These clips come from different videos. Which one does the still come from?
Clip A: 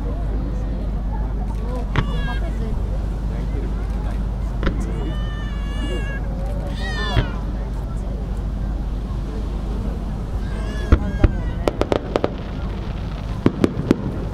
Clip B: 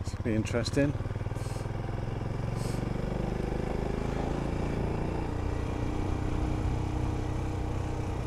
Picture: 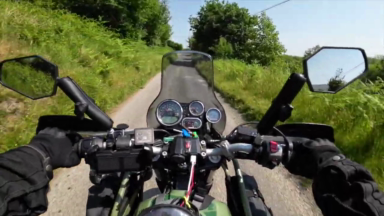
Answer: B